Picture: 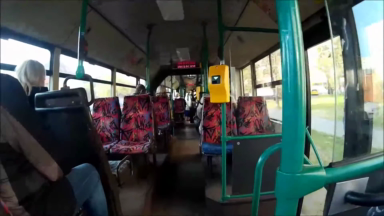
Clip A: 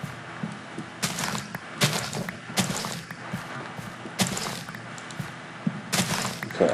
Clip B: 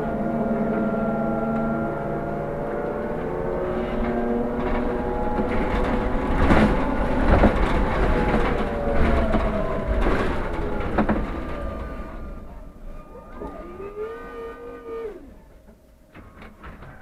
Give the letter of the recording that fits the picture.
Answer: B